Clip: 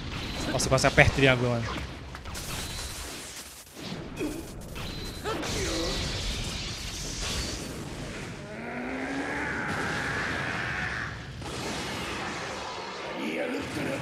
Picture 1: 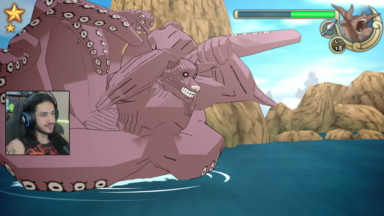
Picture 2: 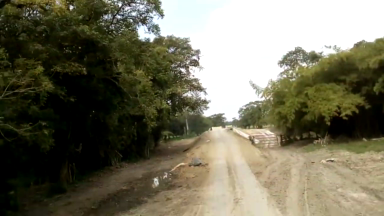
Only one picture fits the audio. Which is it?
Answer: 1